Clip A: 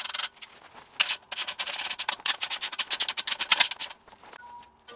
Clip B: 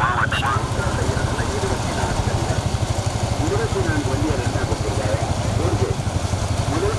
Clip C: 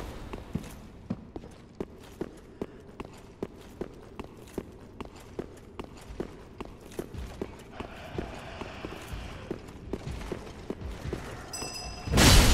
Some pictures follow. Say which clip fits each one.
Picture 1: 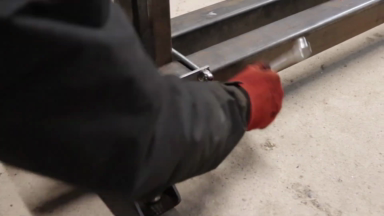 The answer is A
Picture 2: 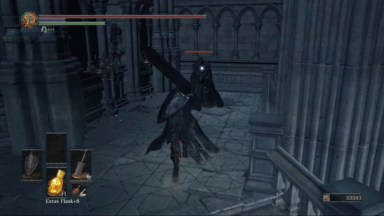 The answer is C